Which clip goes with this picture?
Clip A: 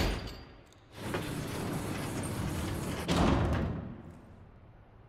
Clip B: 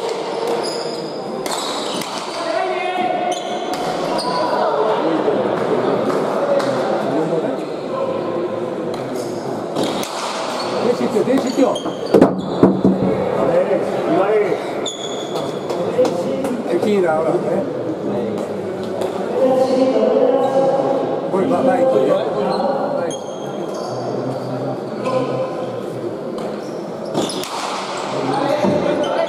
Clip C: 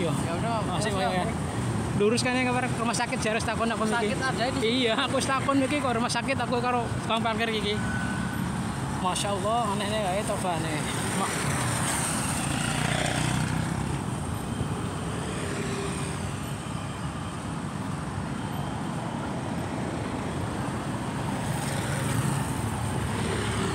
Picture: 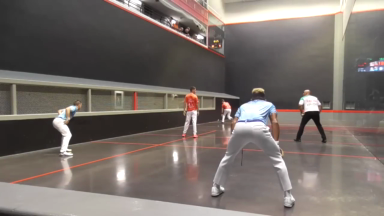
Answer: B